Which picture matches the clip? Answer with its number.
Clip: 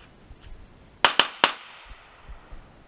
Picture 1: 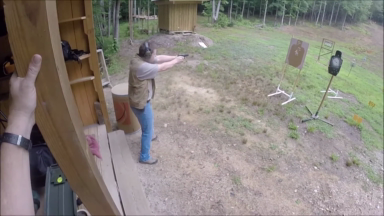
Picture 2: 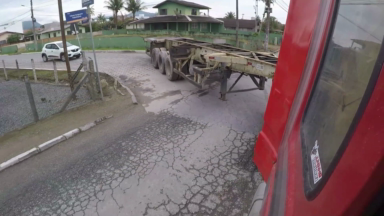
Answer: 1